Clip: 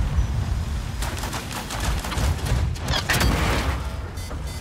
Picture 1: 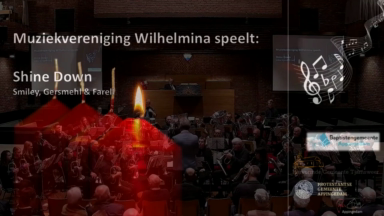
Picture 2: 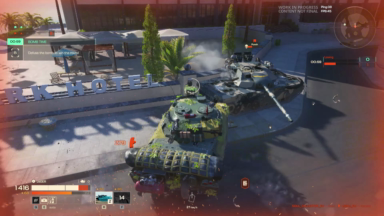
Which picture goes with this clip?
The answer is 2